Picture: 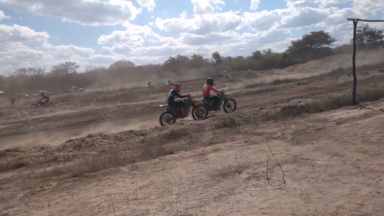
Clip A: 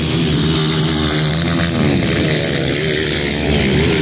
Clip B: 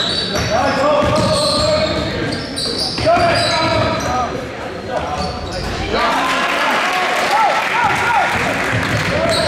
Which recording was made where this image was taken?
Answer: A